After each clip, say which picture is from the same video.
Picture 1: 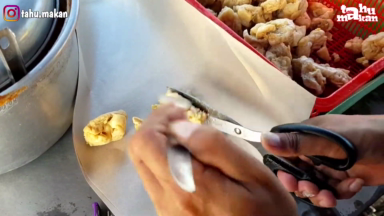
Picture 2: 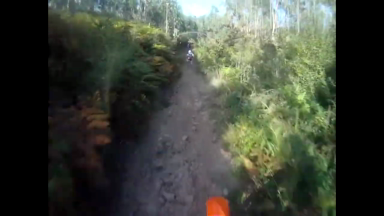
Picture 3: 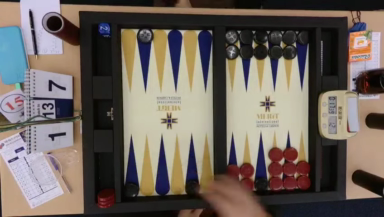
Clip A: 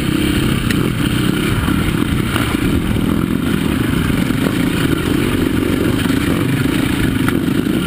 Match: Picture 2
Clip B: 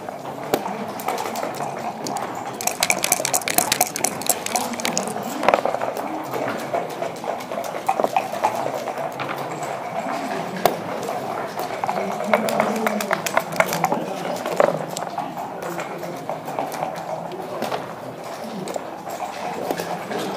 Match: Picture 3